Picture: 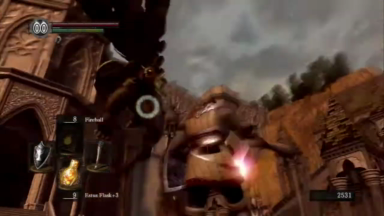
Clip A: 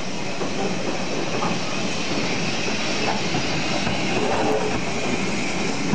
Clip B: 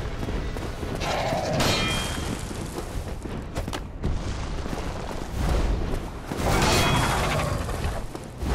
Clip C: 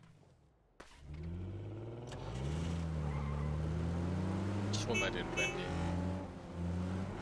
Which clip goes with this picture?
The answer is B